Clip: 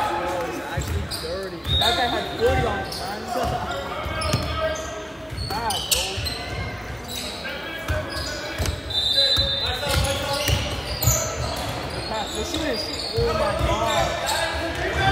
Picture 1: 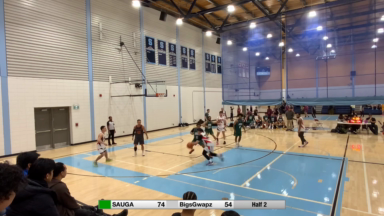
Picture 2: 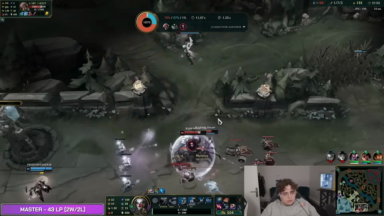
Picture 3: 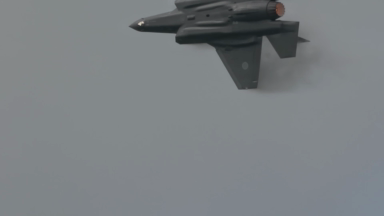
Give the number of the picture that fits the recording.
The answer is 1